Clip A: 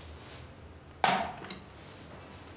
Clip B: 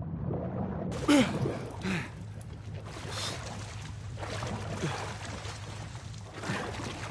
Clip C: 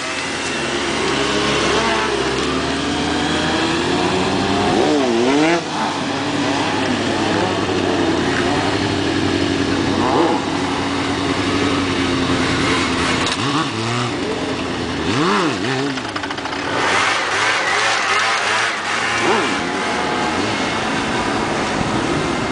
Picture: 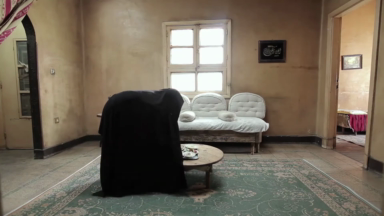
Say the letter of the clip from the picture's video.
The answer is A